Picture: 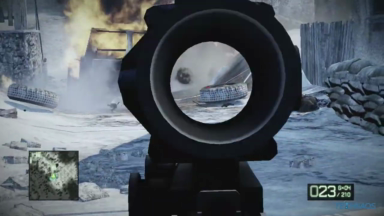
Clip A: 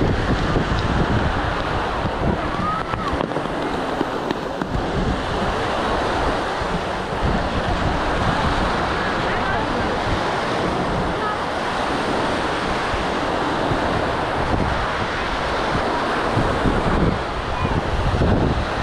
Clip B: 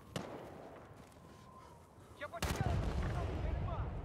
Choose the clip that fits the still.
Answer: B